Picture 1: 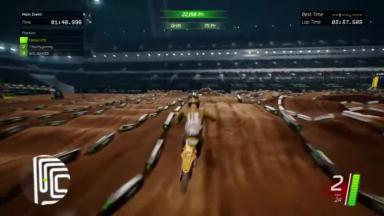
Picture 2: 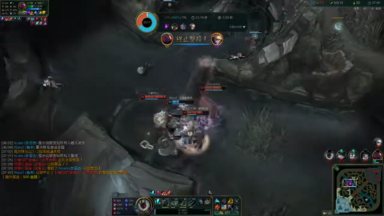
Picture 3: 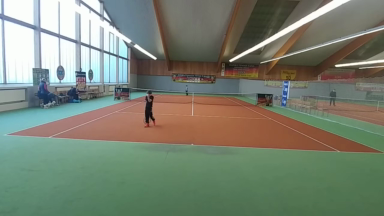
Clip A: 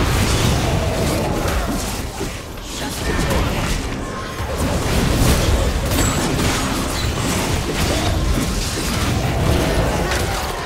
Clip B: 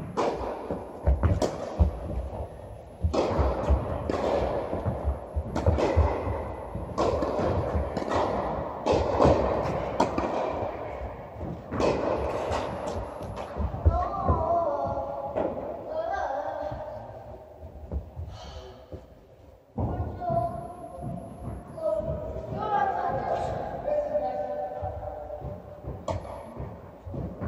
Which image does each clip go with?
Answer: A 2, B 3